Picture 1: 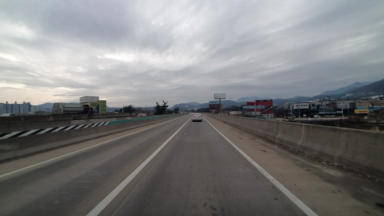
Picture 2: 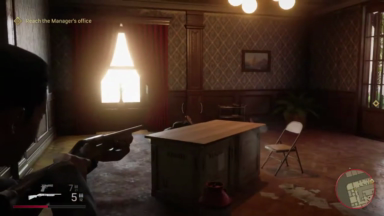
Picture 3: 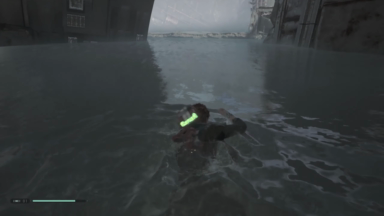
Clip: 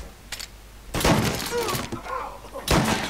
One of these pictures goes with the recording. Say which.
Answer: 2